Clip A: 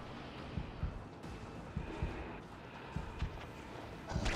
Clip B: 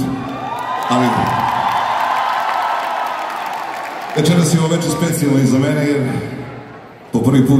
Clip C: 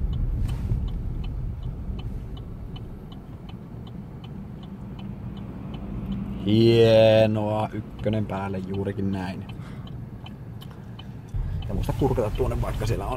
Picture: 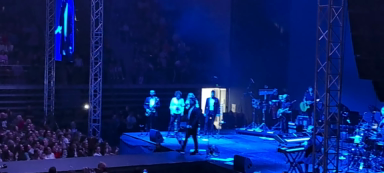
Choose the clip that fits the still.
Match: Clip B